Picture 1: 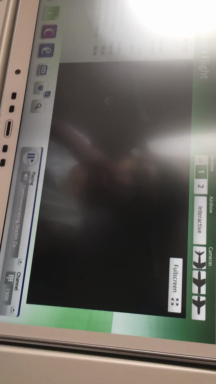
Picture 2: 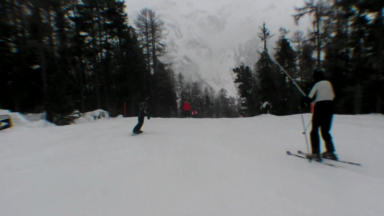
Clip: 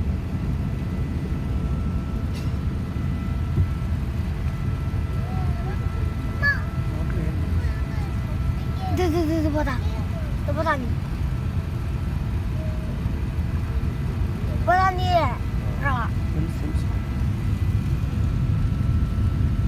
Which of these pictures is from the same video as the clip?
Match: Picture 1